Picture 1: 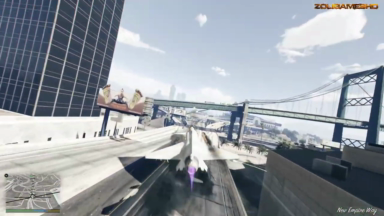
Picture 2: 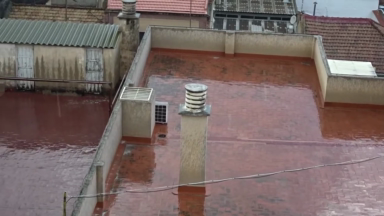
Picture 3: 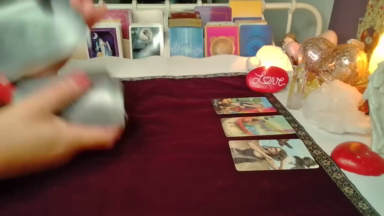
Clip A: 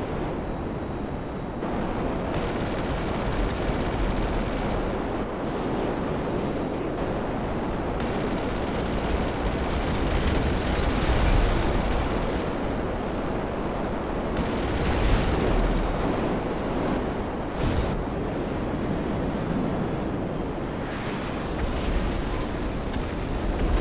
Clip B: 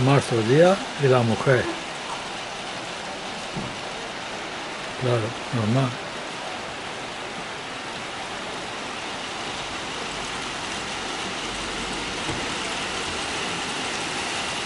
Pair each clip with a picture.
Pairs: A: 1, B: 2